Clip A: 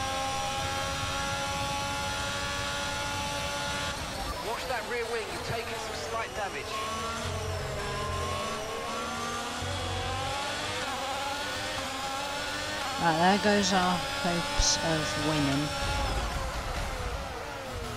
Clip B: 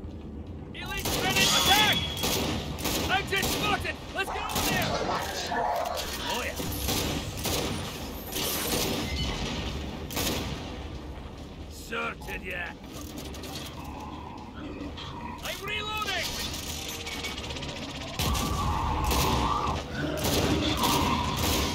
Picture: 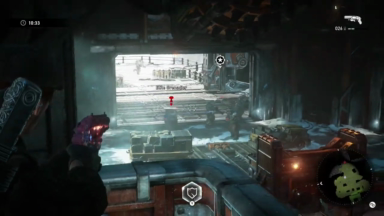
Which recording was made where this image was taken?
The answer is B